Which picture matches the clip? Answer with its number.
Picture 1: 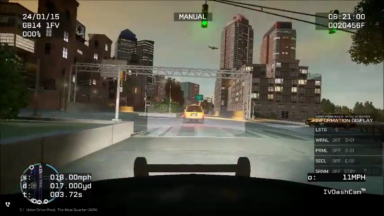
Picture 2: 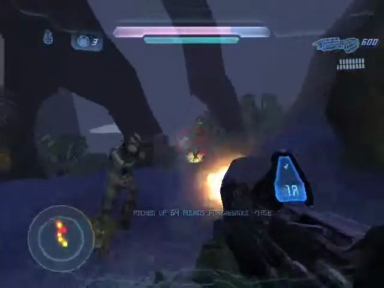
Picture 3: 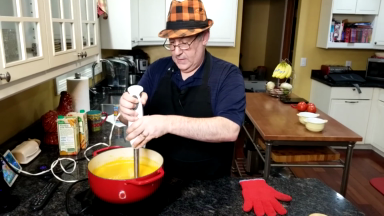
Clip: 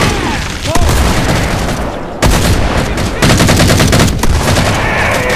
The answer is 2